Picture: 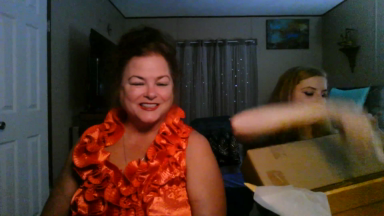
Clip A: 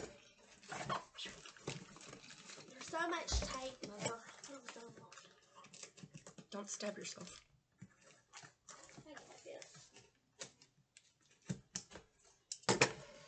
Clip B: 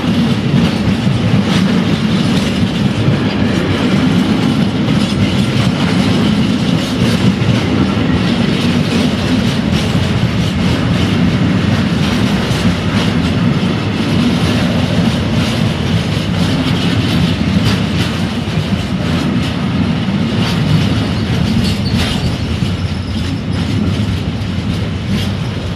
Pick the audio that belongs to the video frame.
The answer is A